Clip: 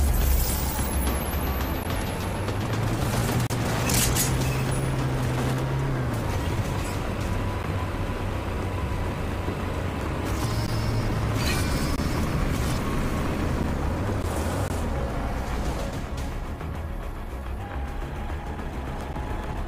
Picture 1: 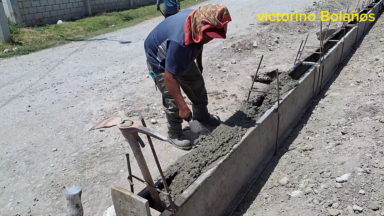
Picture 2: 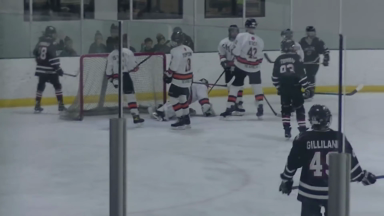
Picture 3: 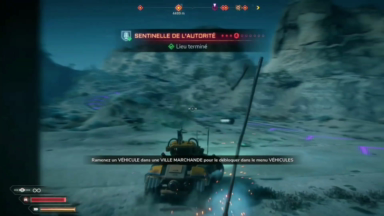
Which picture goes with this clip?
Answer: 3